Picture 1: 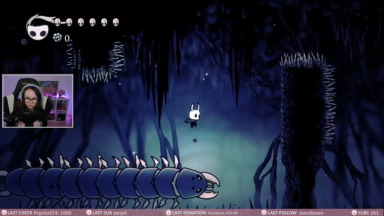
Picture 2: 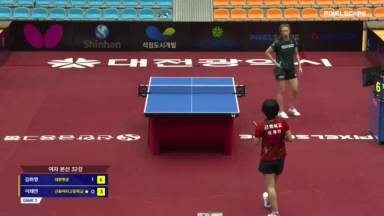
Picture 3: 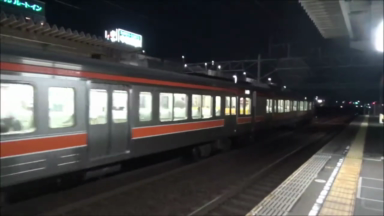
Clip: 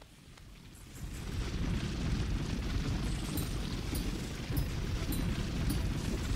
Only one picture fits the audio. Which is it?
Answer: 1